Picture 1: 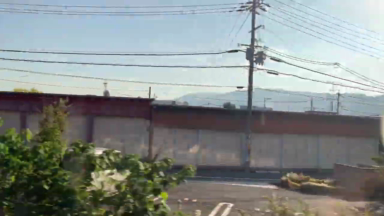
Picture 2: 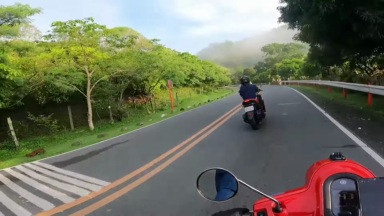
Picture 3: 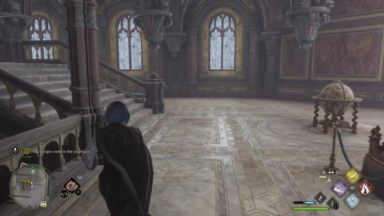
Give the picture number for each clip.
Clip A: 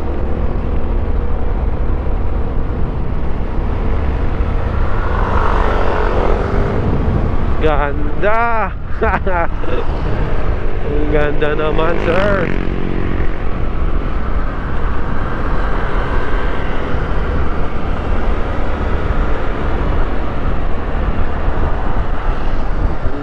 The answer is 2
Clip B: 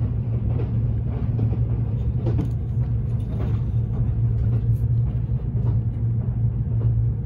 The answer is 1